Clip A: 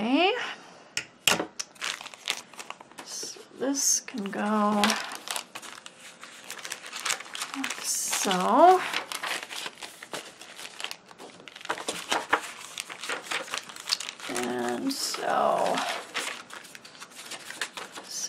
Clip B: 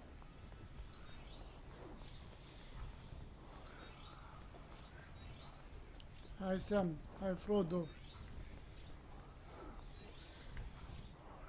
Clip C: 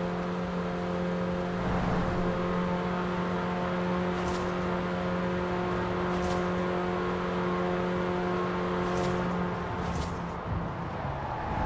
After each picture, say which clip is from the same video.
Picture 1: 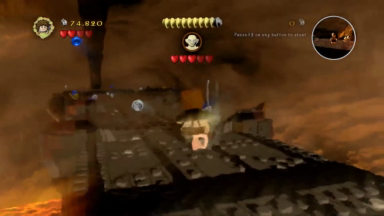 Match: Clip B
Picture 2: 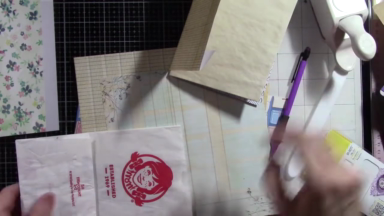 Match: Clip A